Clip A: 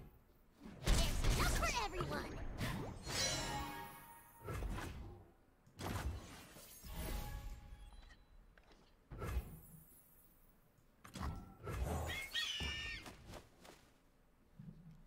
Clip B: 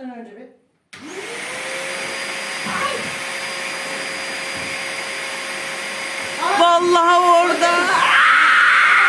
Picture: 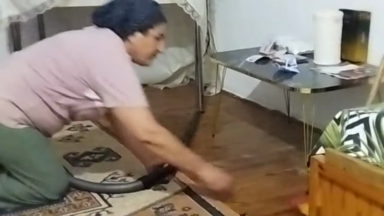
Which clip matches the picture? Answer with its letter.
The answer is B